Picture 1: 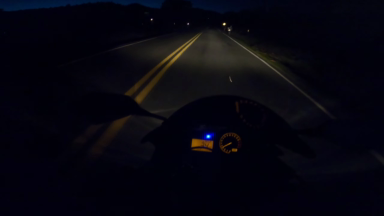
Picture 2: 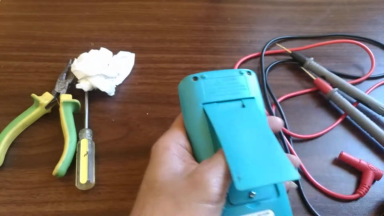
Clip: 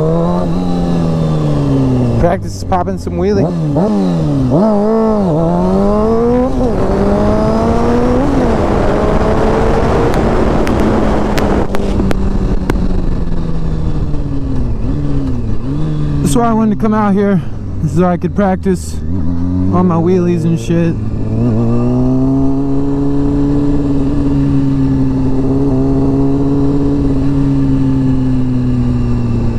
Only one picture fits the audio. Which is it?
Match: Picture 1